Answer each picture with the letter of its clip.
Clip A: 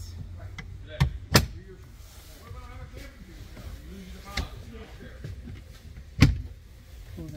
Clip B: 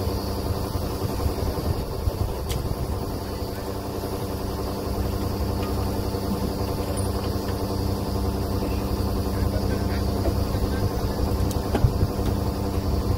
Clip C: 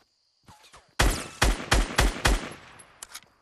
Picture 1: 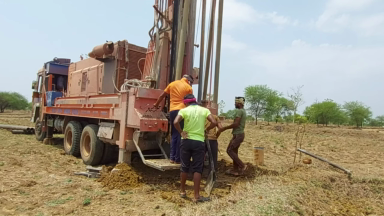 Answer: B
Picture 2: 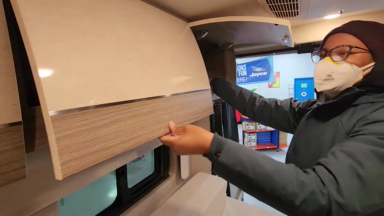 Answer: A